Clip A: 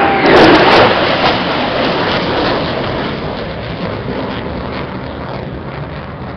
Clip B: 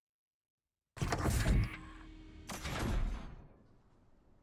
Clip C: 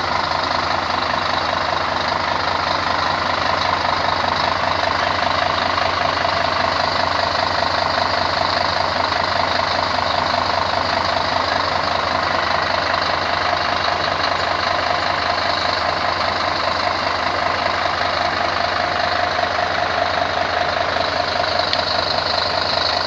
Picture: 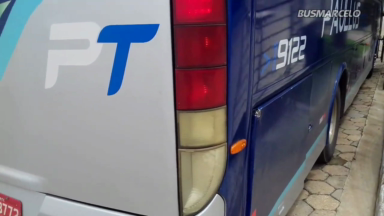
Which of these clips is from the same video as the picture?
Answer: C